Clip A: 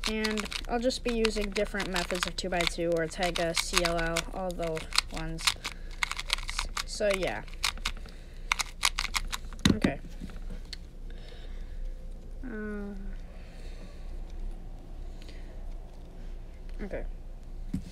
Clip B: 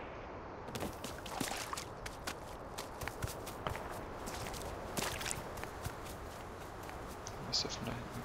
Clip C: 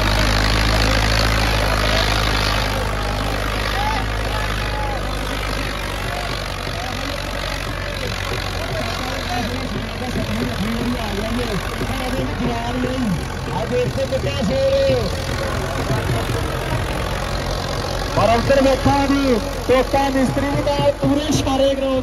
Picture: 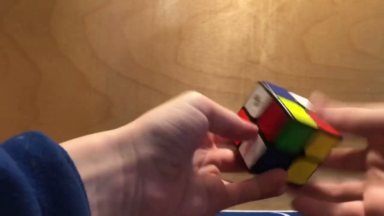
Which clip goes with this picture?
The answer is A